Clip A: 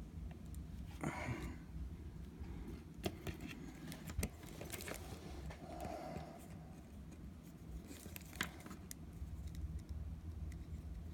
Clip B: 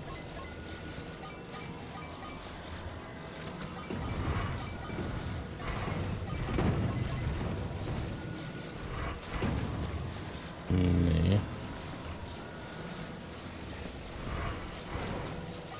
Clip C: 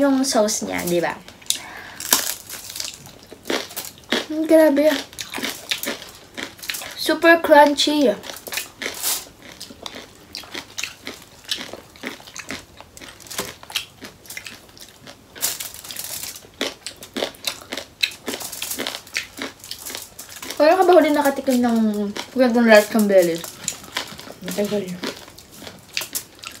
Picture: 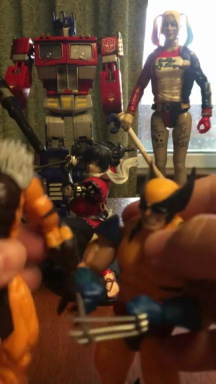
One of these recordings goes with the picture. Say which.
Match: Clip A